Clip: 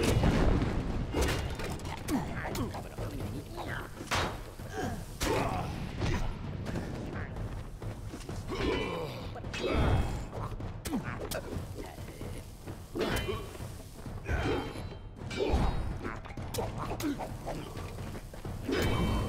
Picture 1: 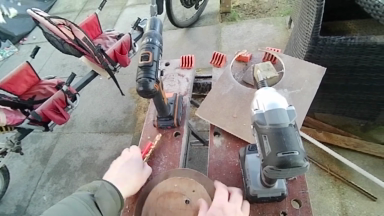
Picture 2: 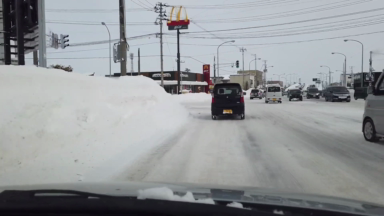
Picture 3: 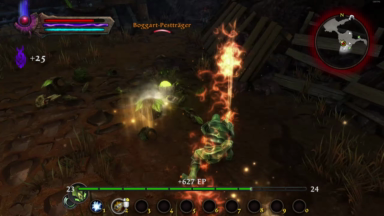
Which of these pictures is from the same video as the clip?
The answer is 3